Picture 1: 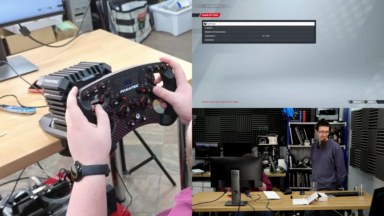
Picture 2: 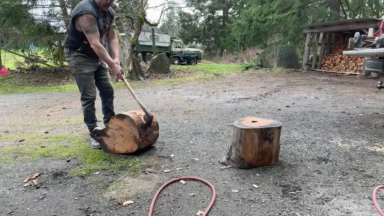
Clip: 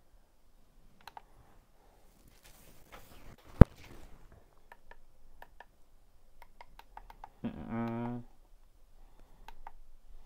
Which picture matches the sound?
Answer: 1